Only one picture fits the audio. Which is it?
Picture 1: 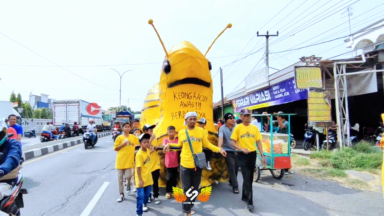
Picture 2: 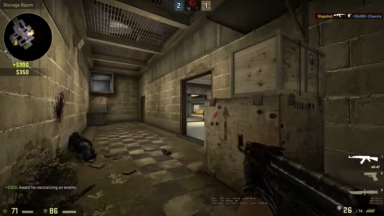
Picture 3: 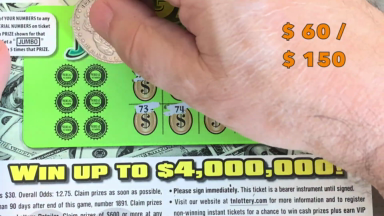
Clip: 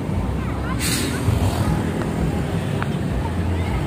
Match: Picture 1